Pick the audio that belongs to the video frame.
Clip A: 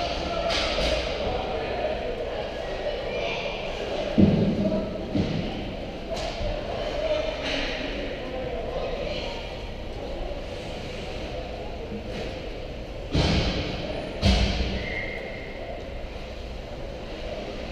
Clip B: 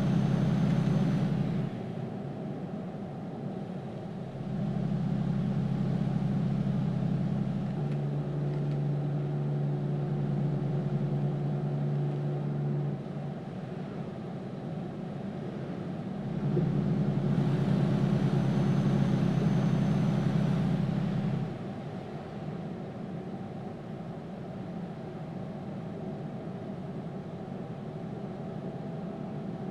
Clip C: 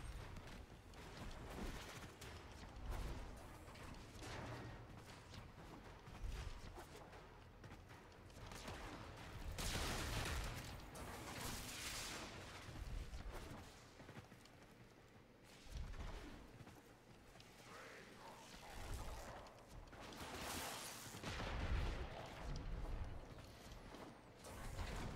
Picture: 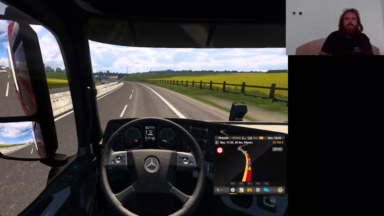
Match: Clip B